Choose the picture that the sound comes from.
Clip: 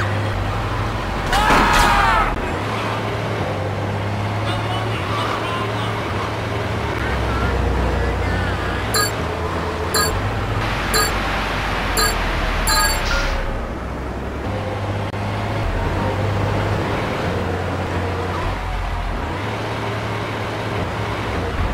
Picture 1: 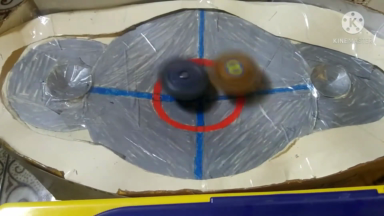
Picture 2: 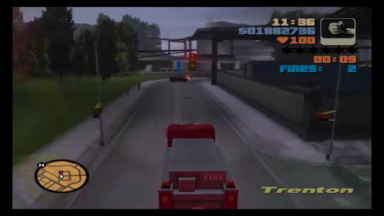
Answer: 2